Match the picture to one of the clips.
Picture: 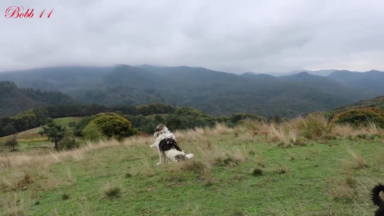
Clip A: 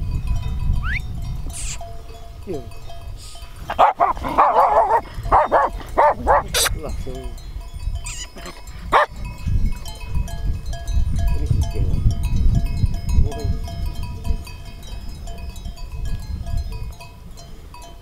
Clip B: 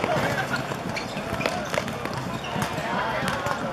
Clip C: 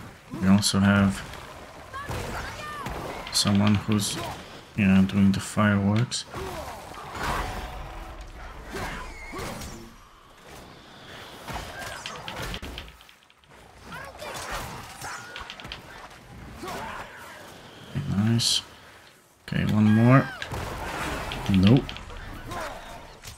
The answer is A